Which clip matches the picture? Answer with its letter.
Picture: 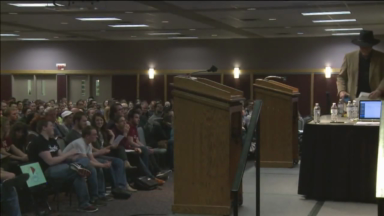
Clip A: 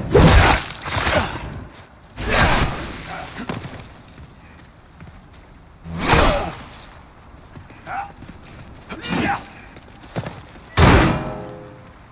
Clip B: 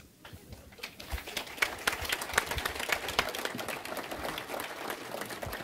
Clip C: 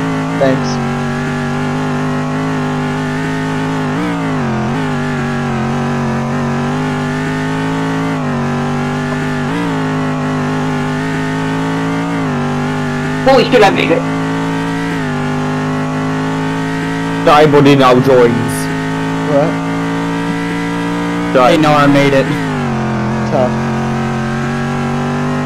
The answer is B